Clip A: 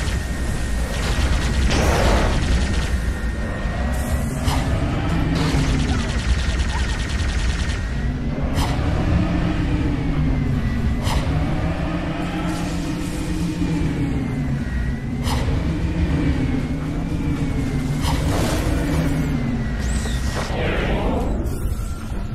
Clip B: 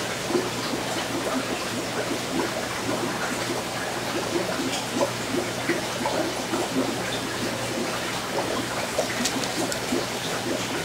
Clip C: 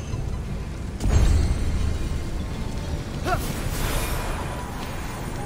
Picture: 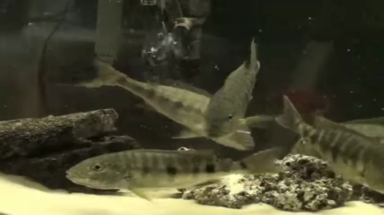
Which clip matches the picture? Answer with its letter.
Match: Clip B